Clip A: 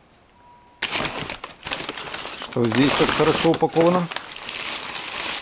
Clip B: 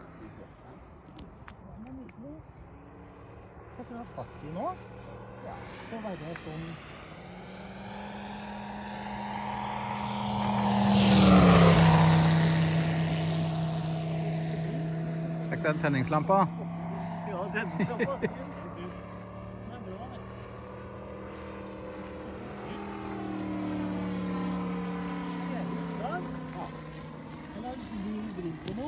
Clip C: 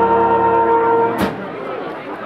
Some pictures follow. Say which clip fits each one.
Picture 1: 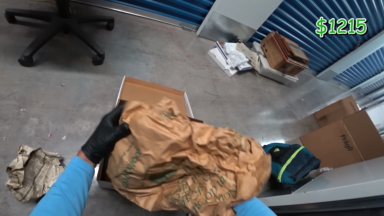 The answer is A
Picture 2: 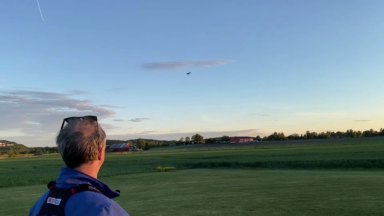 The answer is B